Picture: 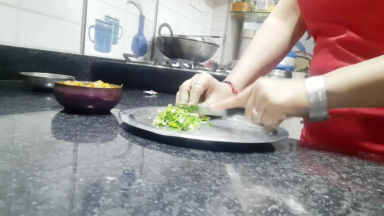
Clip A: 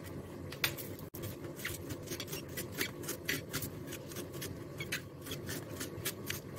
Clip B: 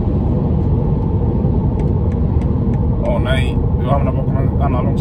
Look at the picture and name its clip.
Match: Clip A